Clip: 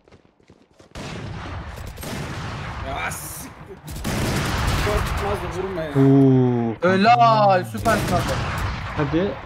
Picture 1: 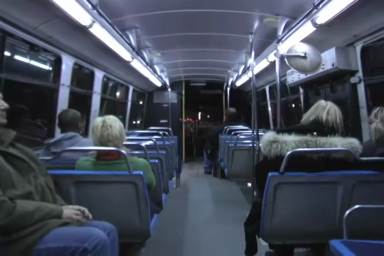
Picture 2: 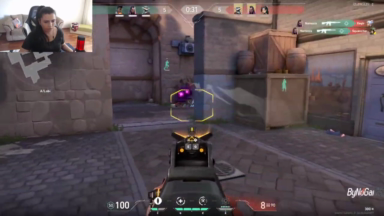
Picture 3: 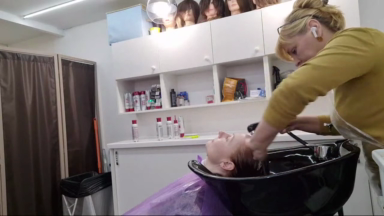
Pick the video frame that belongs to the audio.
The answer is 2